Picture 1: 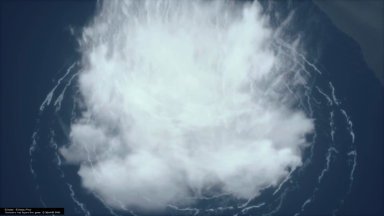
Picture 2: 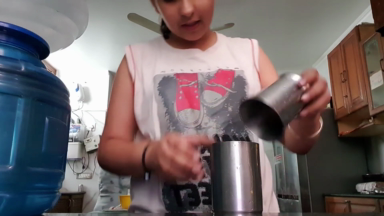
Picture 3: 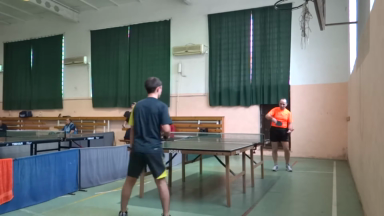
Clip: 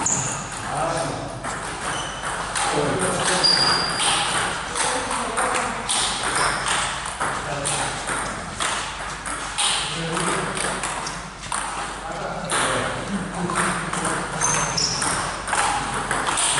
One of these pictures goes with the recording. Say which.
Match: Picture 3